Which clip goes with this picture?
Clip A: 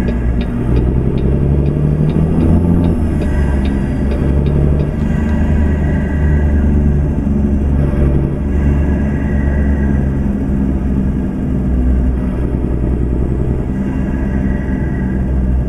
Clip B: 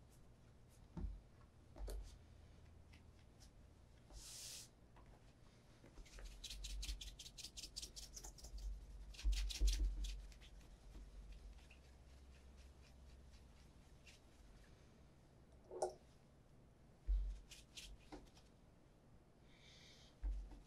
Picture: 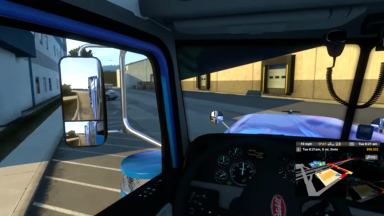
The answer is A